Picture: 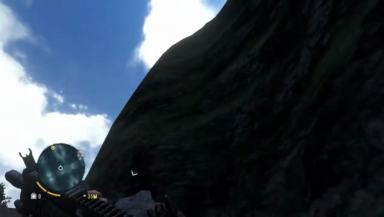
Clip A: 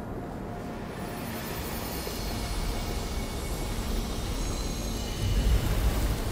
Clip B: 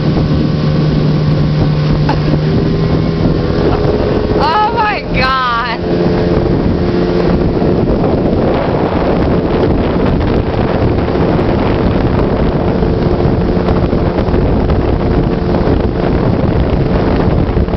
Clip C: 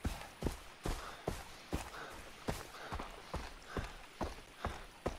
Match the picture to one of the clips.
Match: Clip C